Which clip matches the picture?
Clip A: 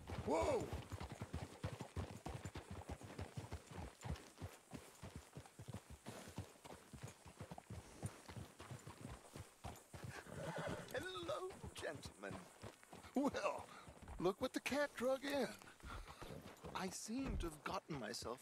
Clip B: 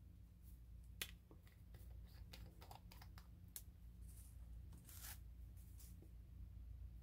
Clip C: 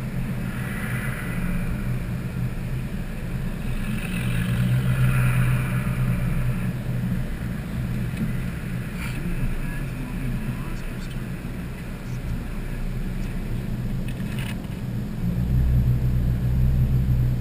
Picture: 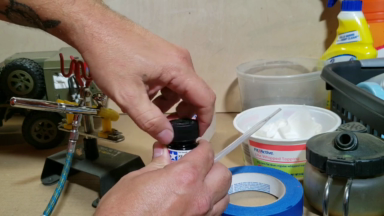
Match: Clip B